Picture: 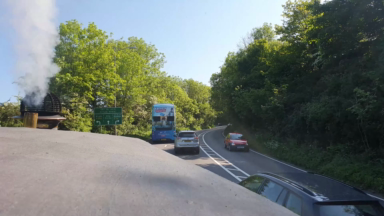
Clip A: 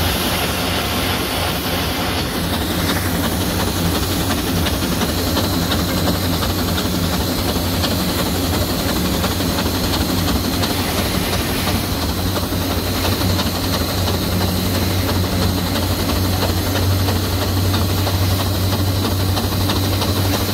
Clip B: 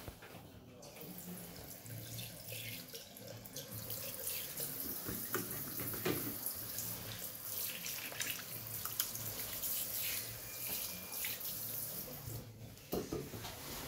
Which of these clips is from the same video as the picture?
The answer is A